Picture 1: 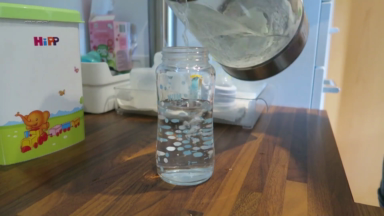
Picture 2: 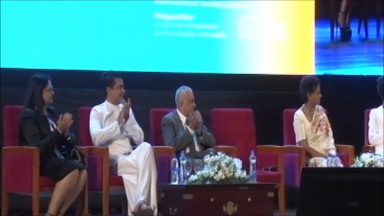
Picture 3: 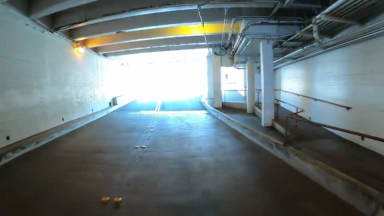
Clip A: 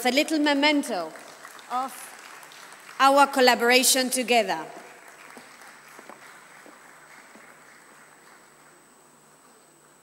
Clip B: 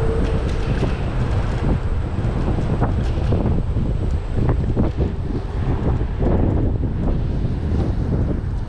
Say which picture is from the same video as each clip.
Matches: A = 2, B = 3